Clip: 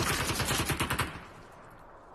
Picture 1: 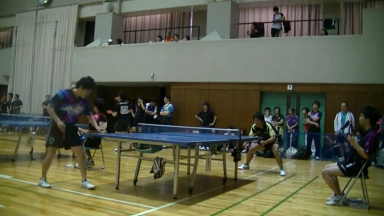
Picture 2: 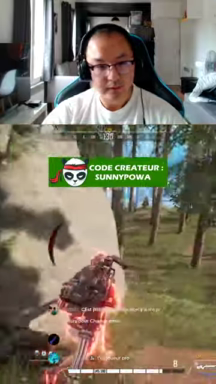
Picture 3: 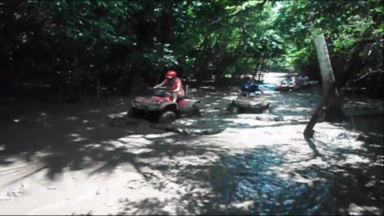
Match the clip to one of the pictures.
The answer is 2